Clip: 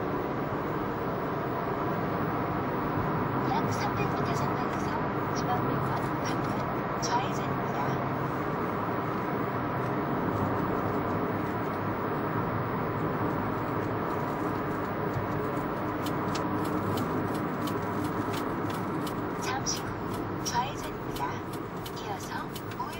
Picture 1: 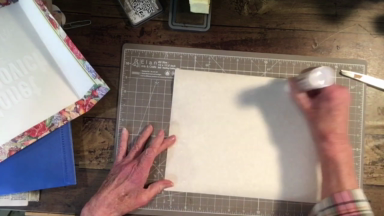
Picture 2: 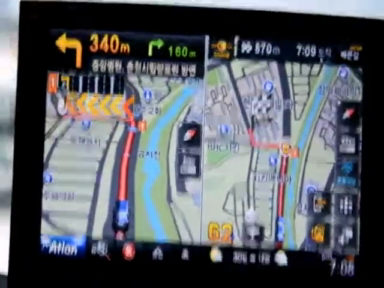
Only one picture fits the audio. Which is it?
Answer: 2